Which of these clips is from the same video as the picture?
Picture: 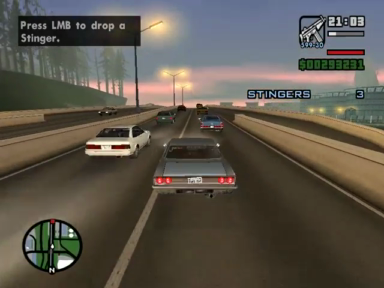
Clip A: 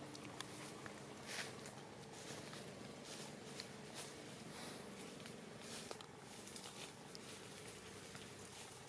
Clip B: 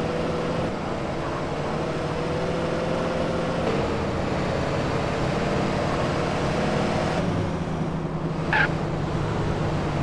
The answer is B